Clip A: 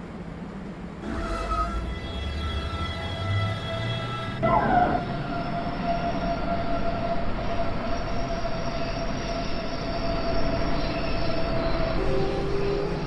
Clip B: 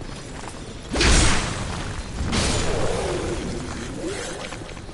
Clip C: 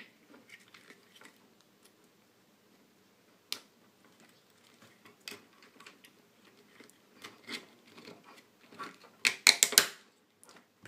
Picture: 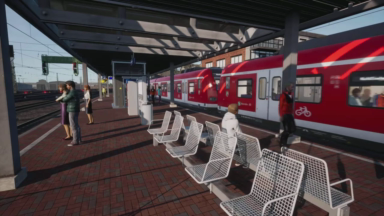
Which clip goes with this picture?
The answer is A